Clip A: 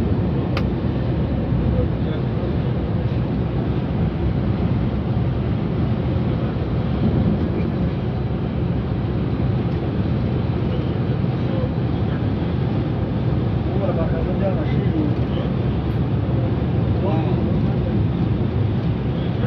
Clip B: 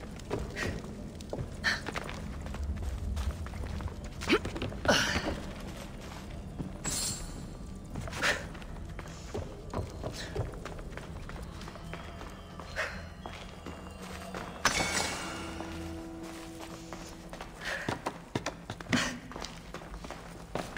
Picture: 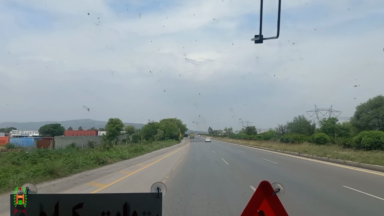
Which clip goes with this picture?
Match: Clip A